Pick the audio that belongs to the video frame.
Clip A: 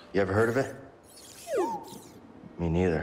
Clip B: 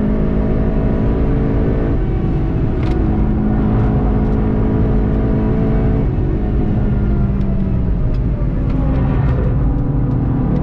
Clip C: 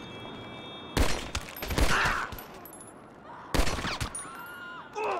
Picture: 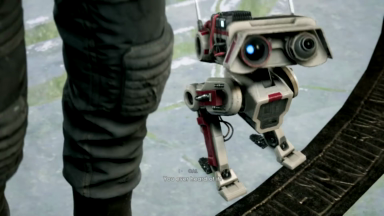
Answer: A